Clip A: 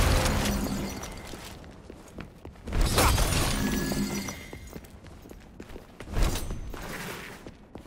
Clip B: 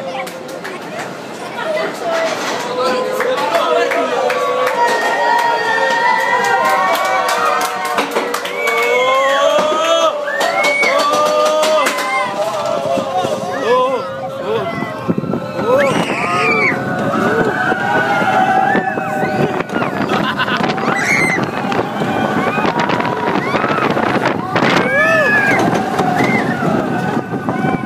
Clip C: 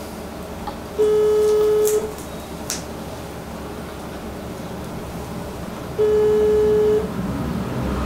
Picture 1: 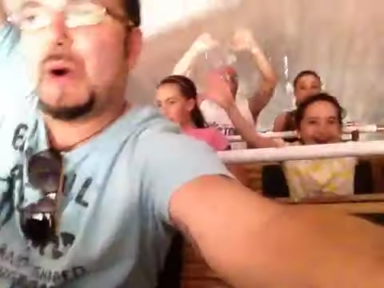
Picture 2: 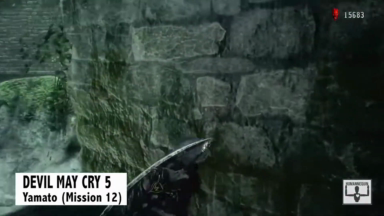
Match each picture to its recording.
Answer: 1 B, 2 A